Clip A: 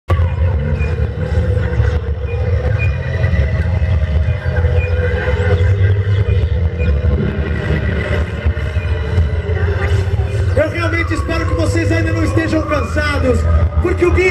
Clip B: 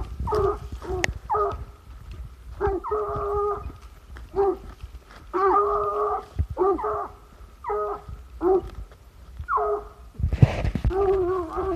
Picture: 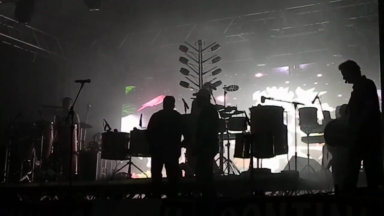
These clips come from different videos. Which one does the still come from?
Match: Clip A